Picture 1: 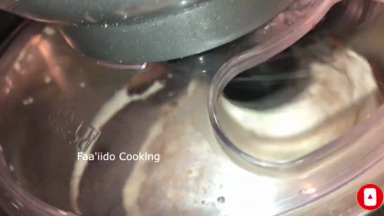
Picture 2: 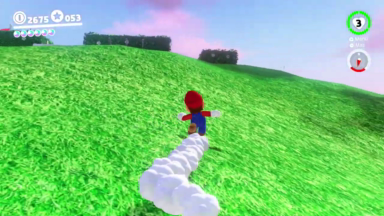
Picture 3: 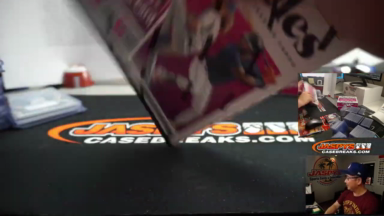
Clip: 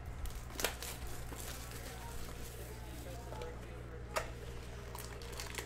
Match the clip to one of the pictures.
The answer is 3